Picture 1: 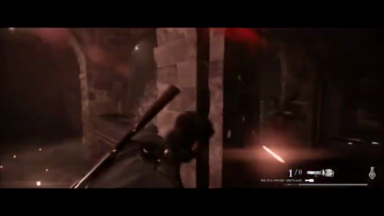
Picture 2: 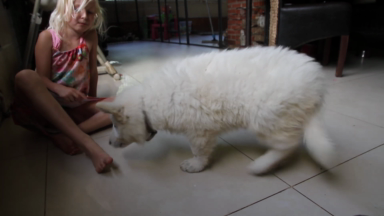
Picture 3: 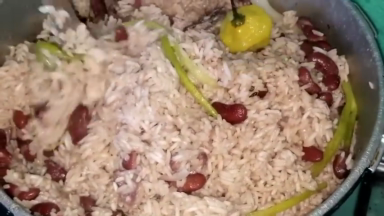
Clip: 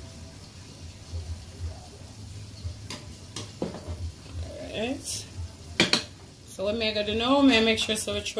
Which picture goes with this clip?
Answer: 3